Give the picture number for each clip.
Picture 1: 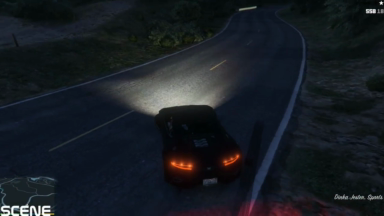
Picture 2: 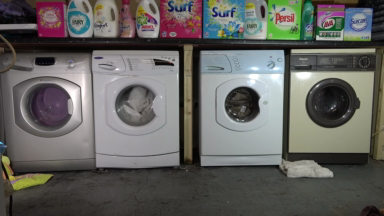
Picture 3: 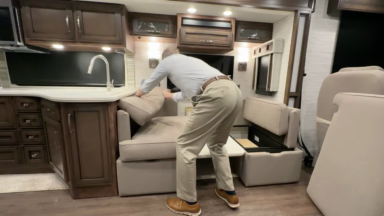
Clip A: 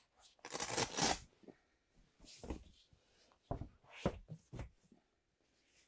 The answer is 3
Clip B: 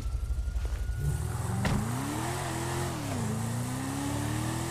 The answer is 1